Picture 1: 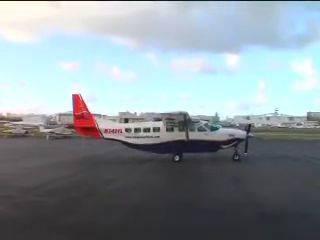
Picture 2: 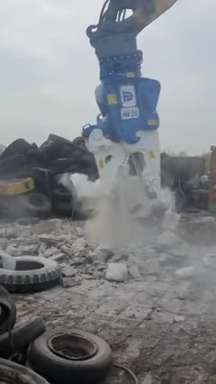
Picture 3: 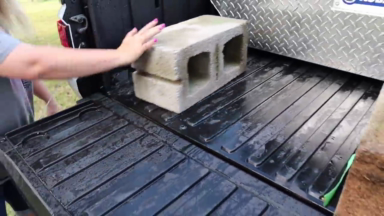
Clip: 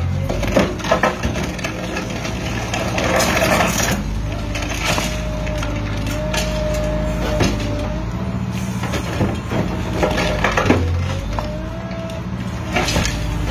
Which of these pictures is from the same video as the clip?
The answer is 2